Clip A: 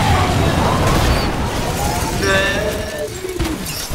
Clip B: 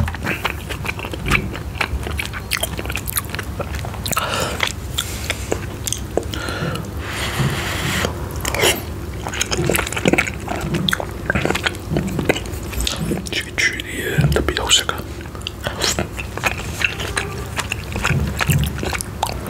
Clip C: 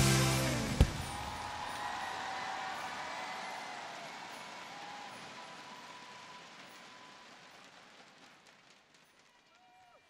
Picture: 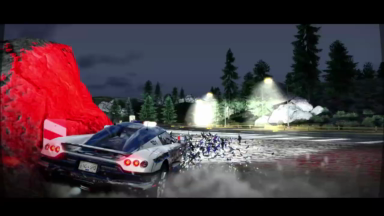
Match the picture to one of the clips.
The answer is A